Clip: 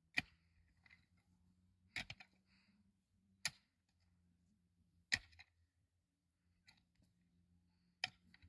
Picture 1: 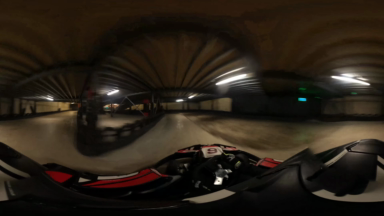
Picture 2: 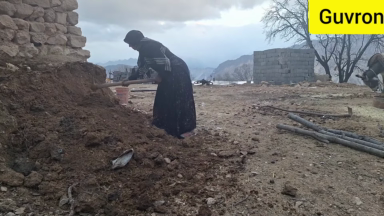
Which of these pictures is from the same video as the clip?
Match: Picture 2